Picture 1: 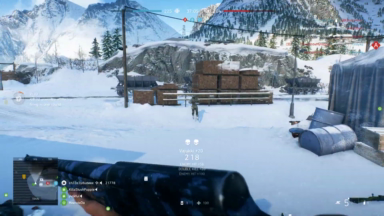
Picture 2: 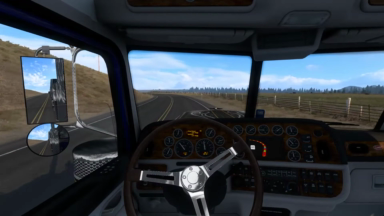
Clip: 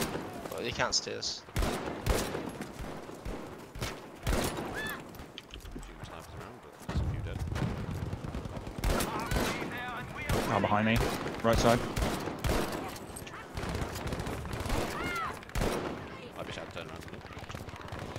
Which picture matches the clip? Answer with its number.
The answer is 1